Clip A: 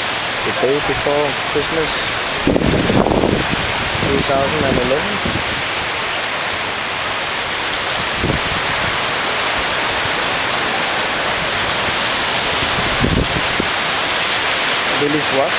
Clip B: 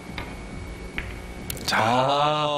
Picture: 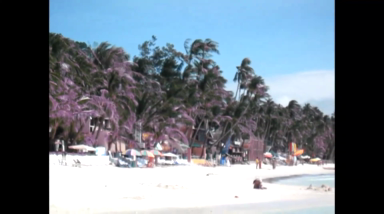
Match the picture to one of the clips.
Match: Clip A